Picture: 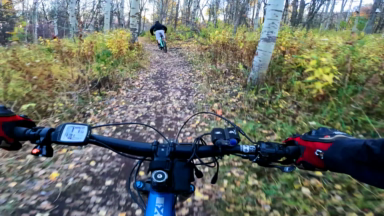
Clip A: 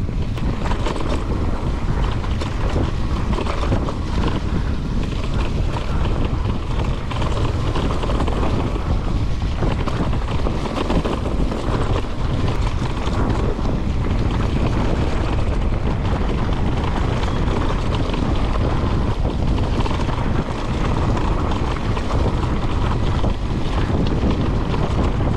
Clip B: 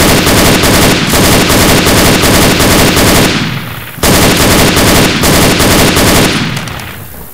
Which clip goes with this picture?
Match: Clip A